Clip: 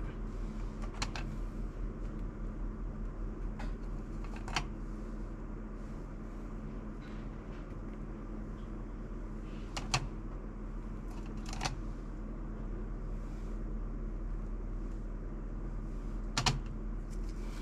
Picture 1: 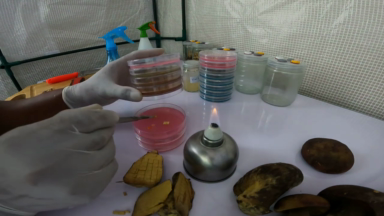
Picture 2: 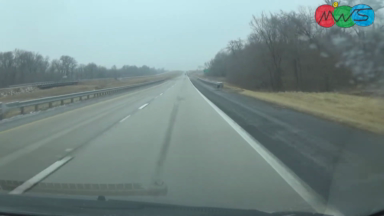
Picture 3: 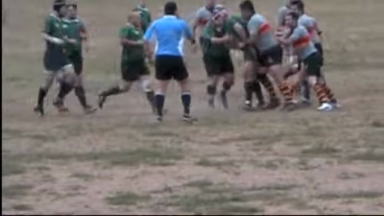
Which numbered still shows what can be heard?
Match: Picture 1